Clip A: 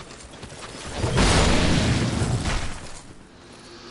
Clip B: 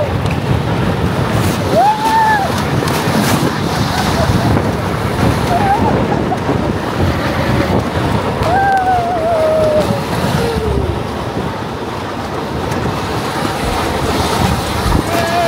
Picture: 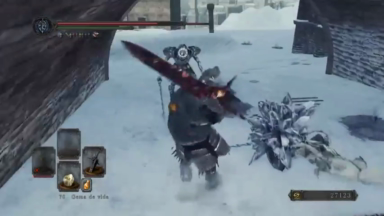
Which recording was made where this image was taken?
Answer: A